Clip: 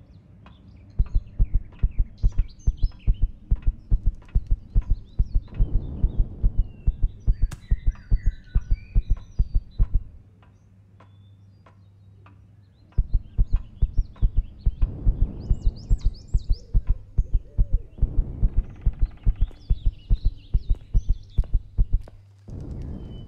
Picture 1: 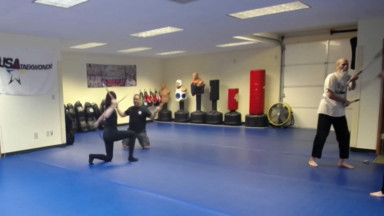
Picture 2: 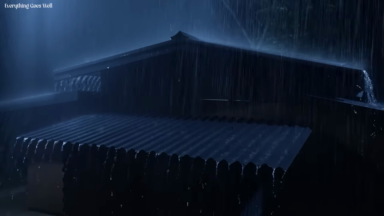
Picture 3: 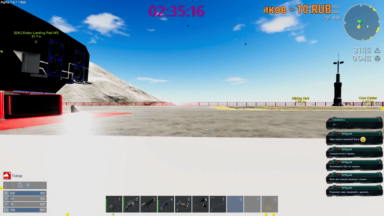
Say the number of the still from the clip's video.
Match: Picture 3